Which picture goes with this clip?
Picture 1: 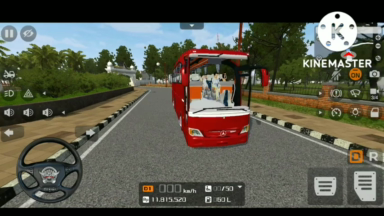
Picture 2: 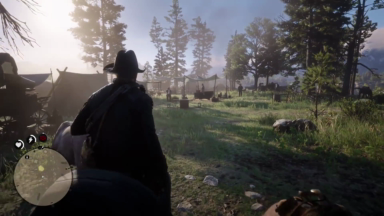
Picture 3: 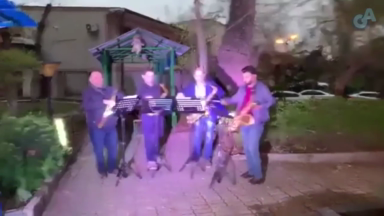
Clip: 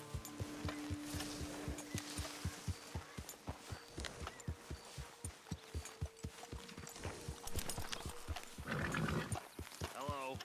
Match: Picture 2